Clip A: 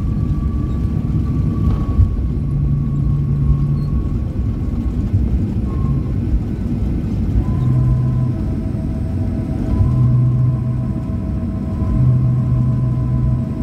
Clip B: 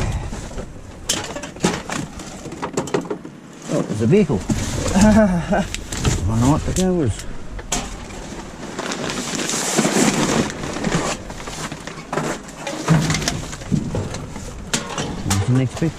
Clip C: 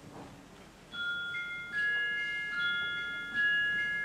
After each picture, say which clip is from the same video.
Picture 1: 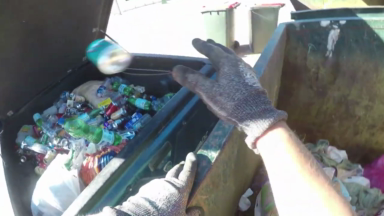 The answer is B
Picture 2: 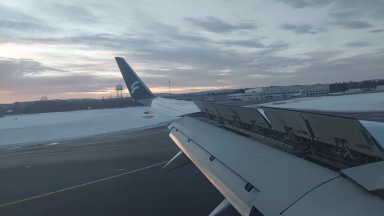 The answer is A